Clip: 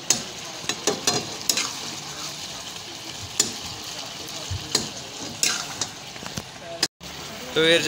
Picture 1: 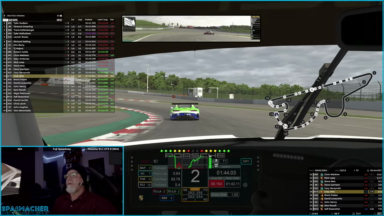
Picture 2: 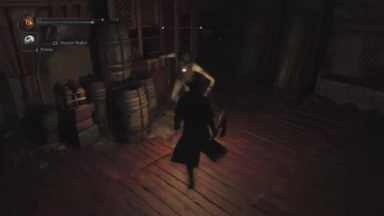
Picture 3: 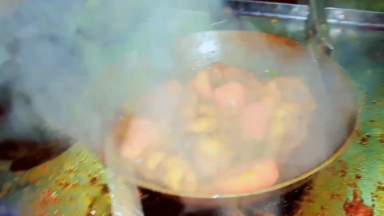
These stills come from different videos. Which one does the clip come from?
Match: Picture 3